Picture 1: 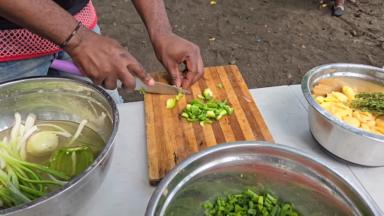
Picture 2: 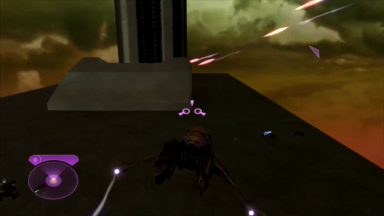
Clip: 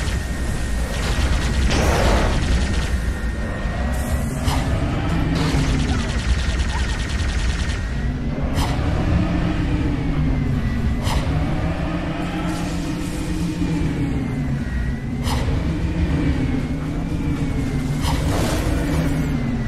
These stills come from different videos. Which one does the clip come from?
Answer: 2